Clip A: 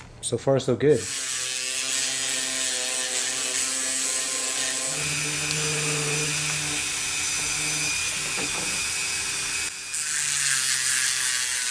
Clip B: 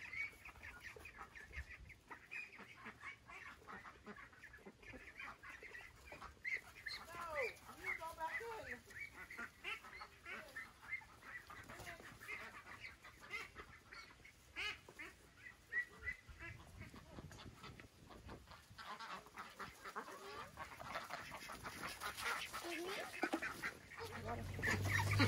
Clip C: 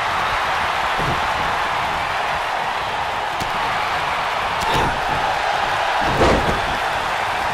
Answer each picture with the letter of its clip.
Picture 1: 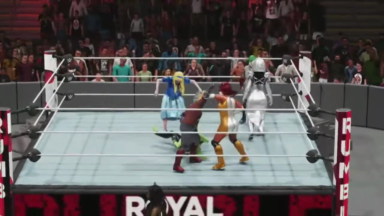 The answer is C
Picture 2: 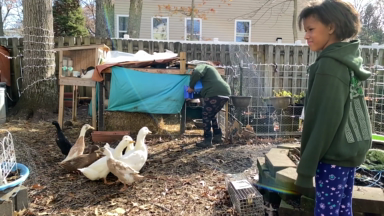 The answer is B